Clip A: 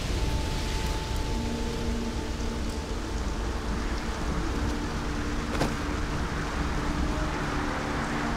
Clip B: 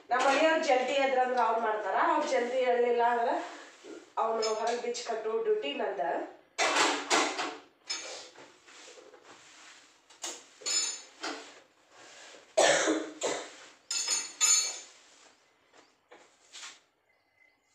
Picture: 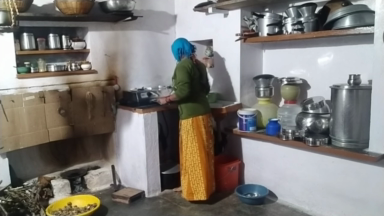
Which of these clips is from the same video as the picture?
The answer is B